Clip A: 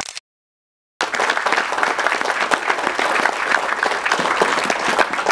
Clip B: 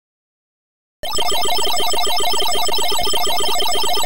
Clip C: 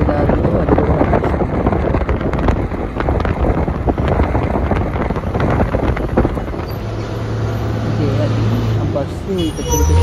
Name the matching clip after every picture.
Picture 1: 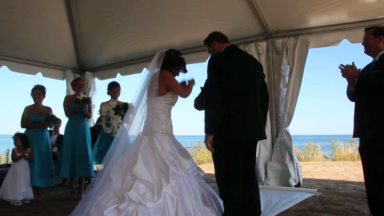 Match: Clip A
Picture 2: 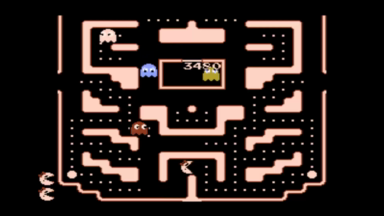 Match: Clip B